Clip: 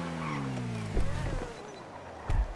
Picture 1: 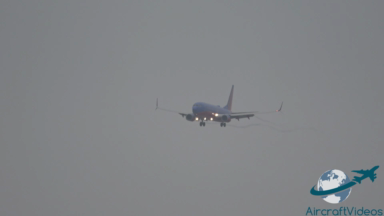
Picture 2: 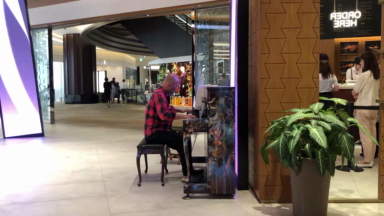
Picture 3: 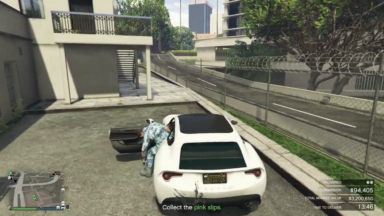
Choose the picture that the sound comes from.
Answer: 3